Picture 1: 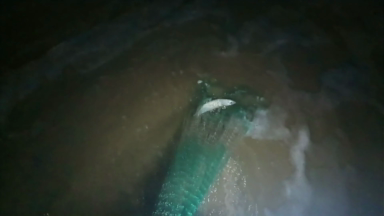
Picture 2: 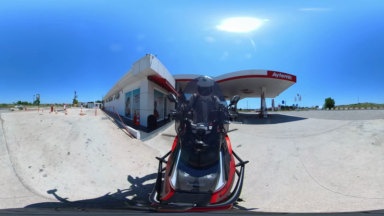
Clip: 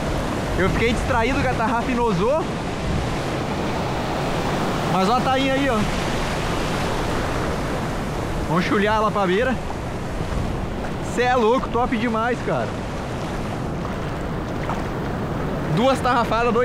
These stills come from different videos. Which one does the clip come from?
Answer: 1